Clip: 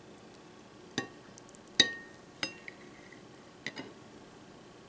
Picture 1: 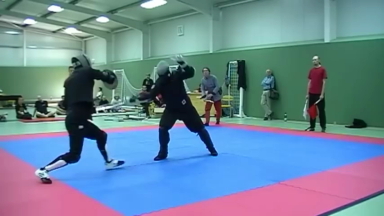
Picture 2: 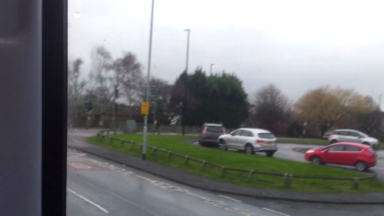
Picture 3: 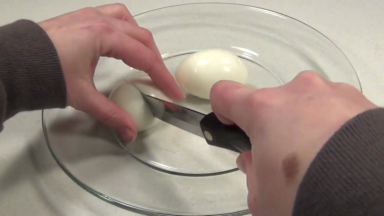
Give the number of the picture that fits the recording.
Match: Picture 3